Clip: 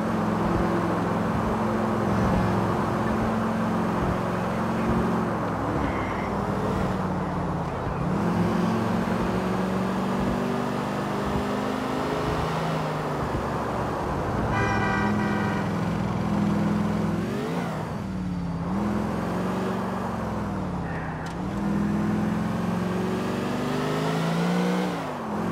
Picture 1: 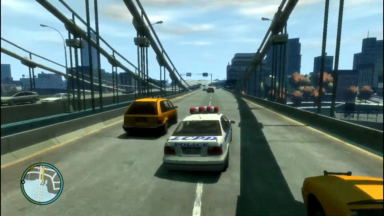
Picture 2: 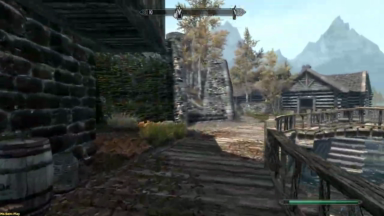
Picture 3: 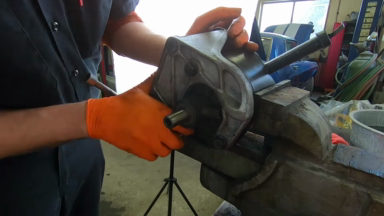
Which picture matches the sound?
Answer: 1